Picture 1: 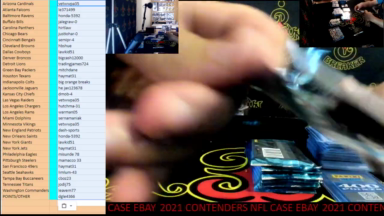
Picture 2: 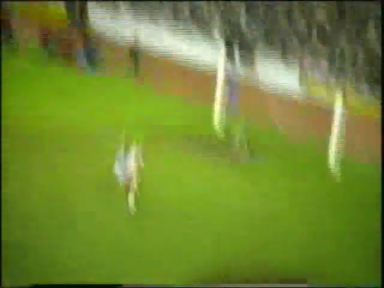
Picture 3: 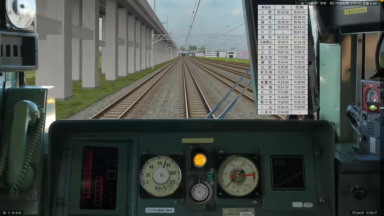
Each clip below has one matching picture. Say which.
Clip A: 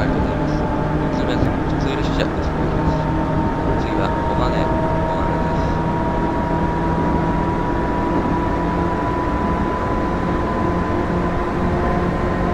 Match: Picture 3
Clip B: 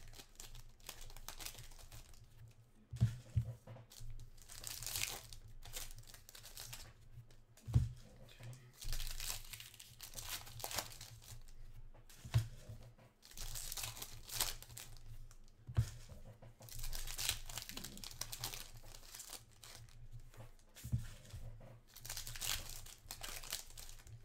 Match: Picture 1